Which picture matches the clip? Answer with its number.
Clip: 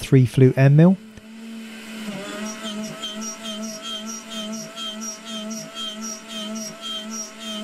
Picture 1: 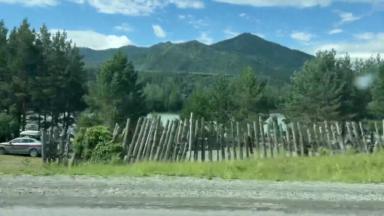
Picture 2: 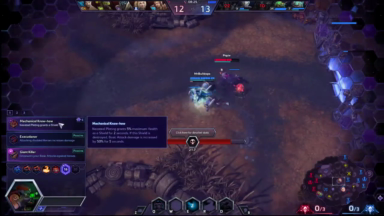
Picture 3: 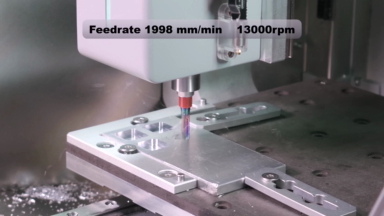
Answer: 3